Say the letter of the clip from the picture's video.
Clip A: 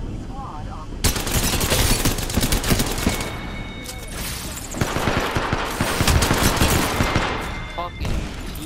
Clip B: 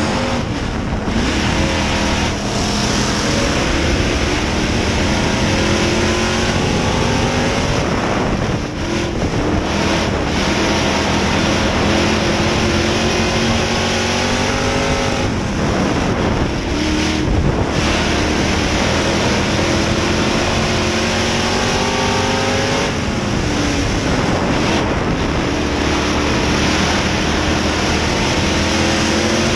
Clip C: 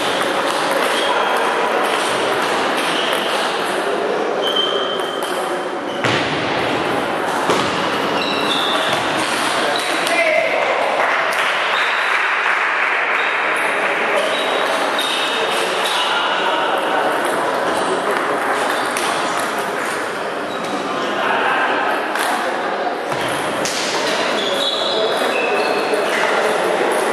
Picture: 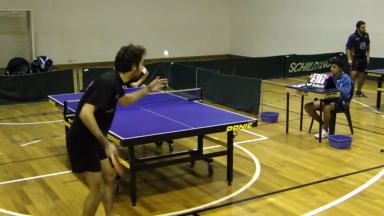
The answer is C